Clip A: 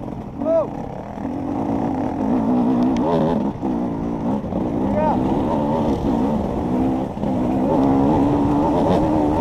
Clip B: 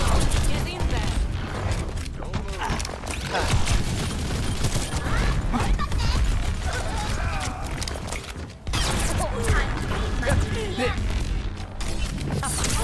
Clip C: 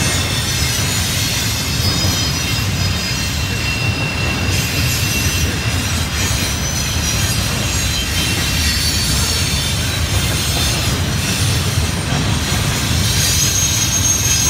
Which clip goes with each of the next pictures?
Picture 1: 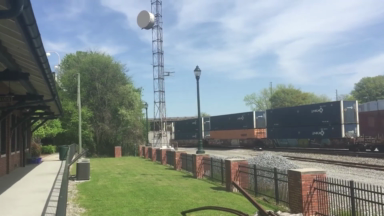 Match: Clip C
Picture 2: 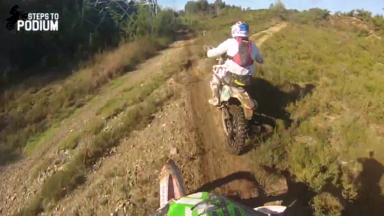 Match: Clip A